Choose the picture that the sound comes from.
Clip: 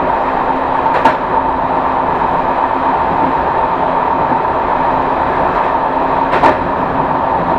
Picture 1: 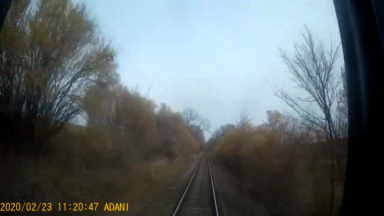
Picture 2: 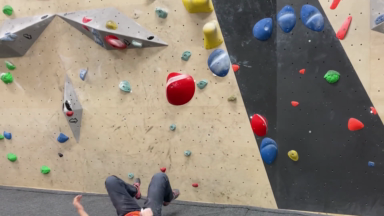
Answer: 1